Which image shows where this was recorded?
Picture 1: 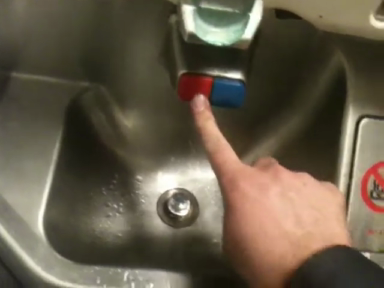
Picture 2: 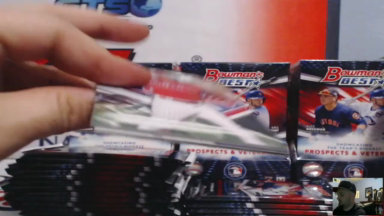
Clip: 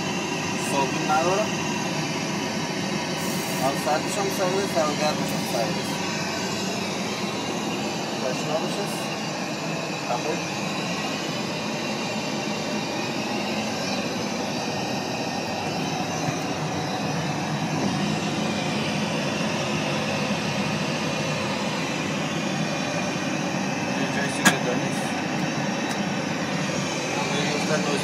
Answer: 1